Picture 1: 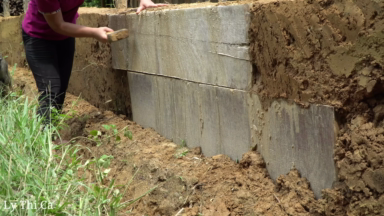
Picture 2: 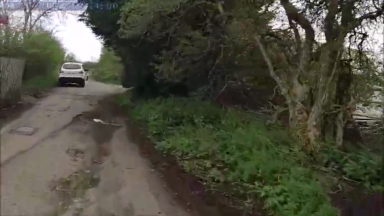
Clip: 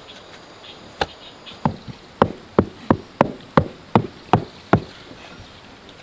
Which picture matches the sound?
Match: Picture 1